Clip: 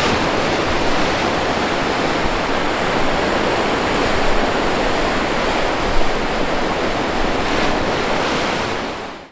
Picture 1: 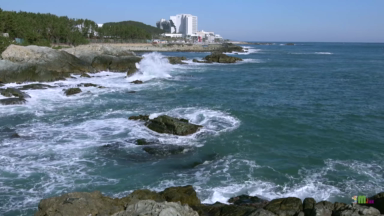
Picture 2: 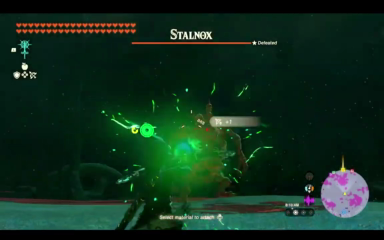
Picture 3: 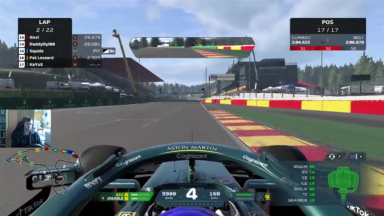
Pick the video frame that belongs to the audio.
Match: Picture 1